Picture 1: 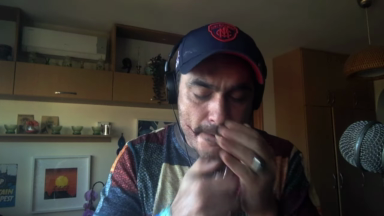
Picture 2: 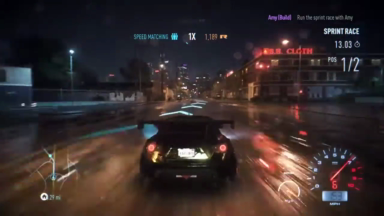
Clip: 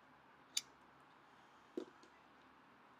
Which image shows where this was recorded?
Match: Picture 1